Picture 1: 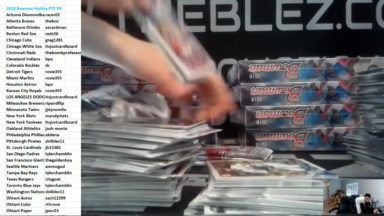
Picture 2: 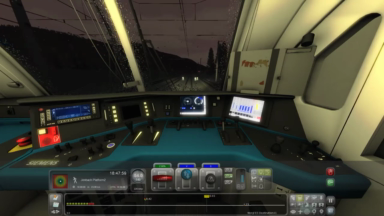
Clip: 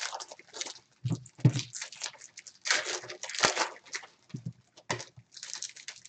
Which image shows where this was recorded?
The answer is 1